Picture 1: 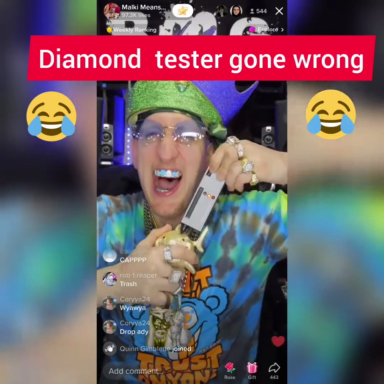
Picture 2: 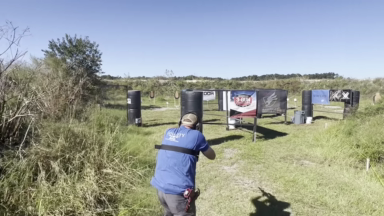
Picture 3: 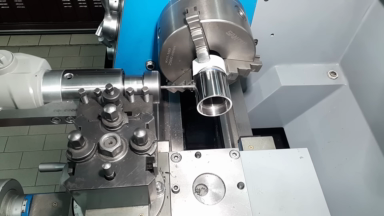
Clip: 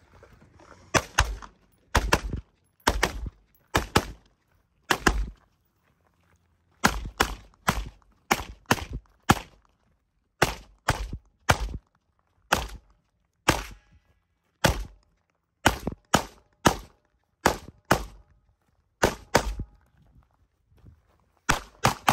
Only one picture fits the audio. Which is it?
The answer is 2